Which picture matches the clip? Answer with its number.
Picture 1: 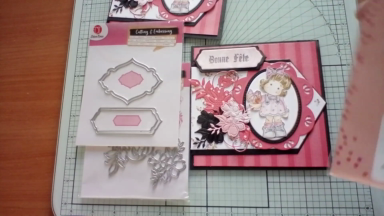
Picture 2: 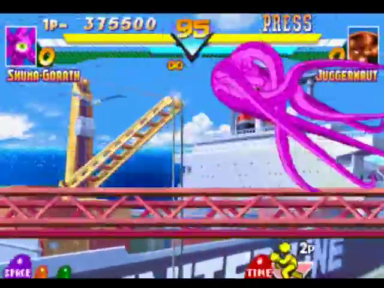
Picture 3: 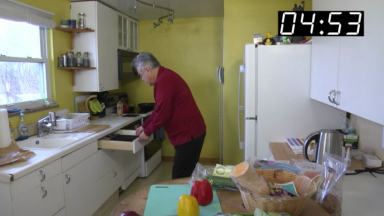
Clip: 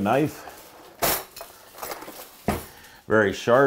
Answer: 3